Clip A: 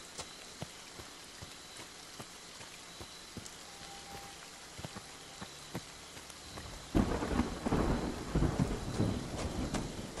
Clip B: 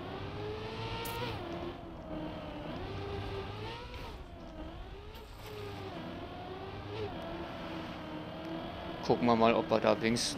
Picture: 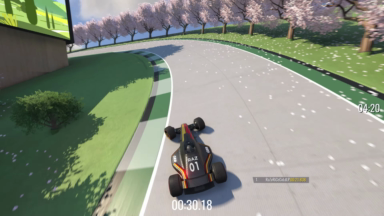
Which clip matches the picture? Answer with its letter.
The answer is B